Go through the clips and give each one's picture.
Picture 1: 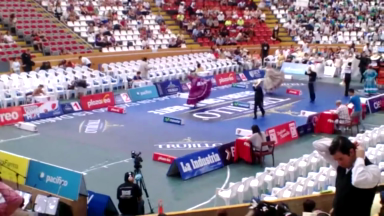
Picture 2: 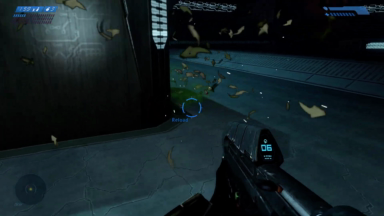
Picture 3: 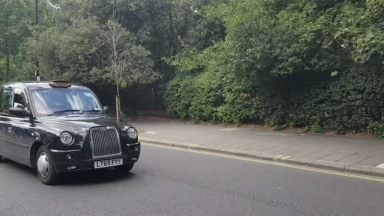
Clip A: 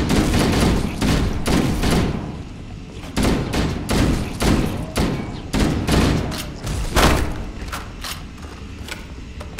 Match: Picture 2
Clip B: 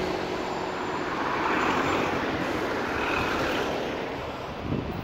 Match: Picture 3